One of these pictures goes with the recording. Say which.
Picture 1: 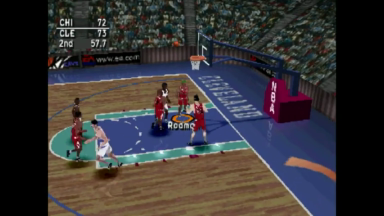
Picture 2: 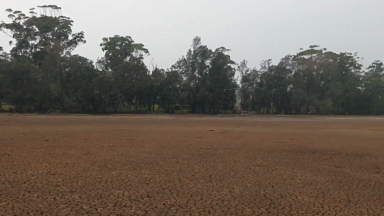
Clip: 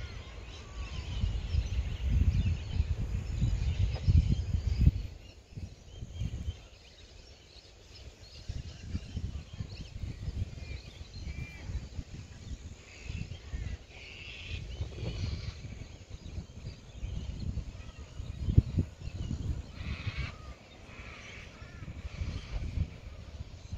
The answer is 2